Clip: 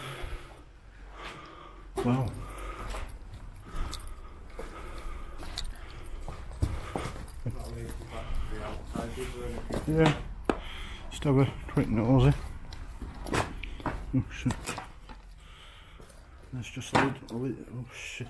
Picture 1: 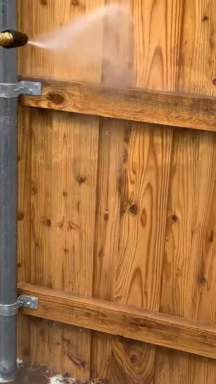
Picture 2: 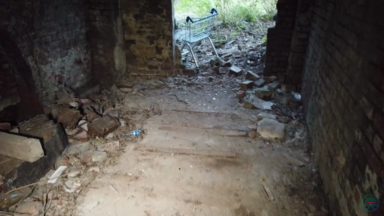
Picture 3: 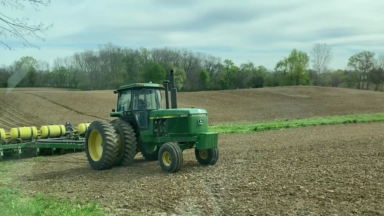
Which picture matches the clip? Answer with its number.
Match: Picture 2